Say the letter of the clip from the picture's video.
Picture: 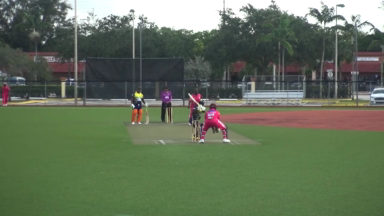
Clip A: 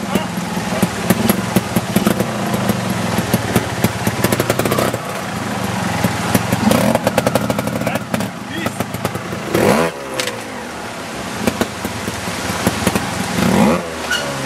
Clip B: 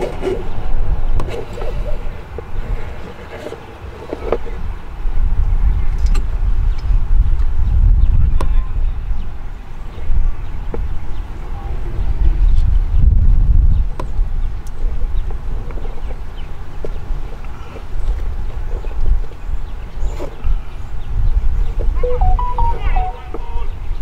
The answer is B